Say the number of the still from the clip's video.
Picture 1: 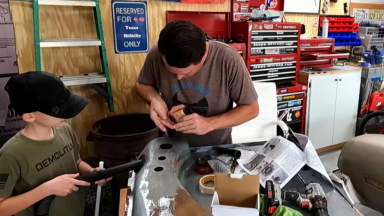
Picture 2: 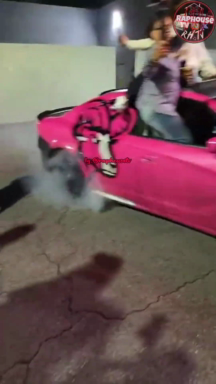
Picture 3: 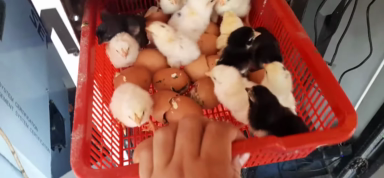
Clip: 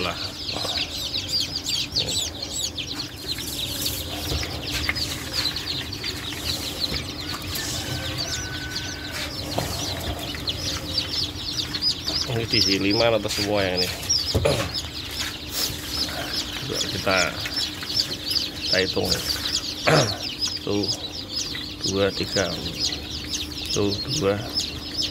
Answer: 3